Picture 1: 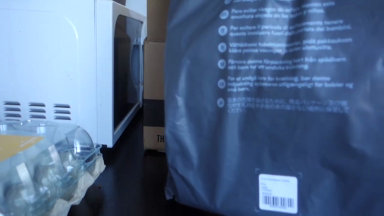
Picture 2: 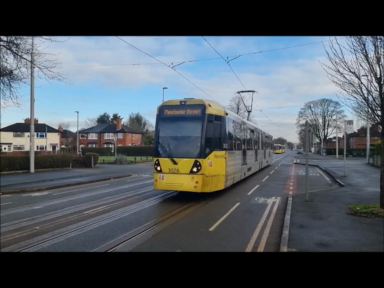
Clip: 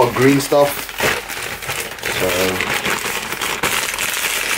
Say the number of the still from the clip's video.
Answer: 1